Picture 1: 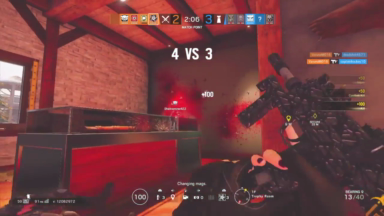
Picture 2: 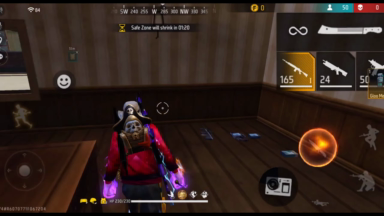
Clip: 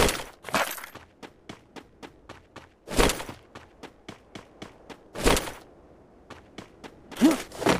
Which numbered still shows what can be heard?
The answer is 2